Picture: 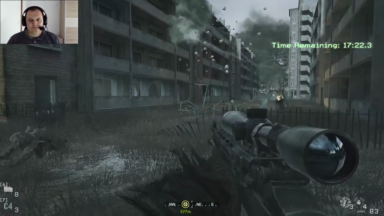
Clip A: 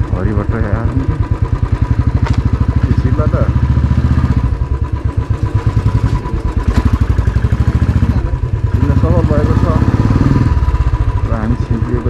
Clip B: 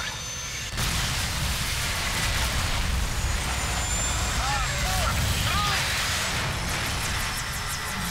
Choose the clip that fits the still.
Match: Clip B